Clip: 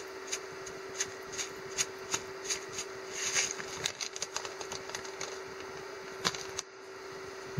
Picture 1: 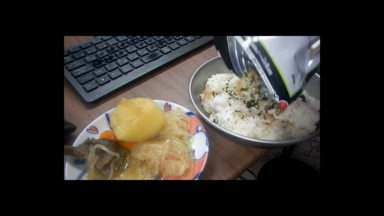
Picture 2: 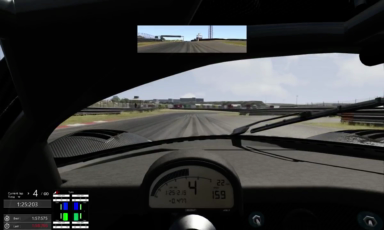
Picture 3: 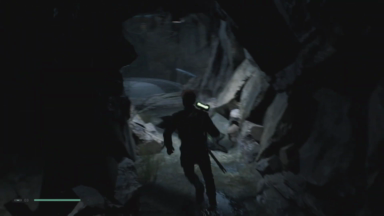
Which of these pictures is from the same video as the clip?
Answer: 1